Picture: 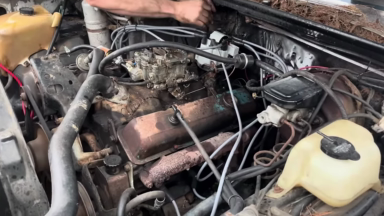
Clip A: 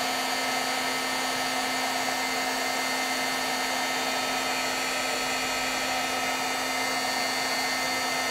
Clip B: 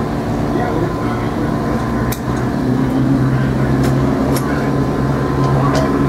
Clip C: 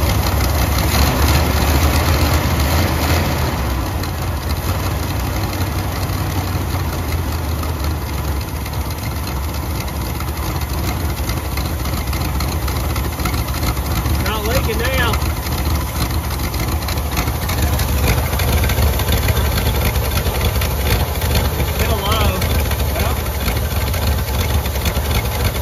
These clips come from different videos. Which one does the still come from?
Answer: C